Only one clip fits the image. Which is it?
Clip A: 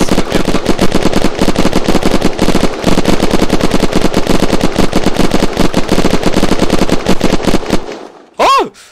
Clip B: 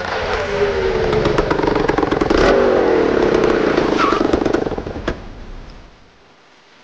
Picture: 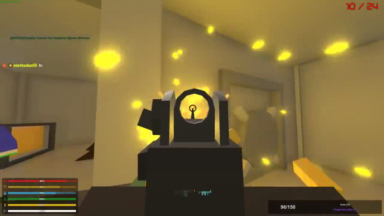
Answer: A